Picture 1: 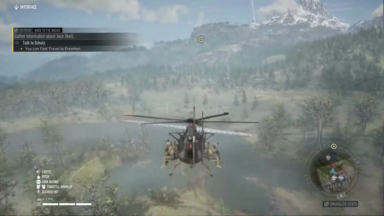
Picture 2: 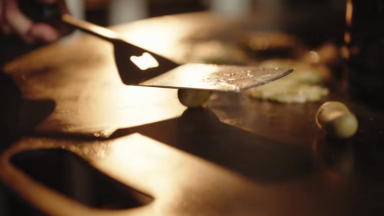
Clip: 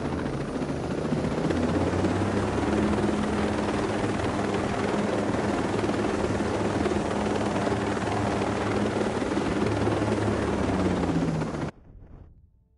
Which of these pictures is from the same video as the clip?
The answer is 1